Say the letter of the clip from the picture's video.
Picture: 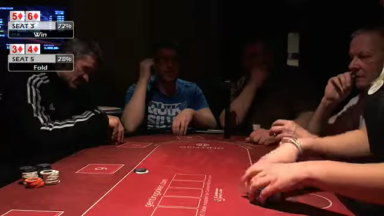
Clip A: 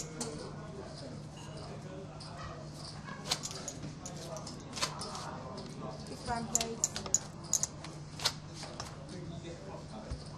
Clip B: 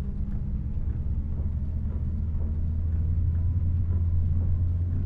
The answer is A